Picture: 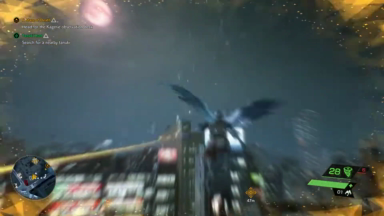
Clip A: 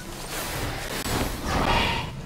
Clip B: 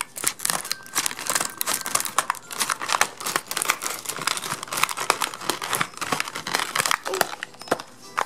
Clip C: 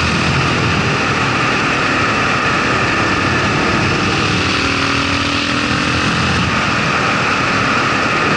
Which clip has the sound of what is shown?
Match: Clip A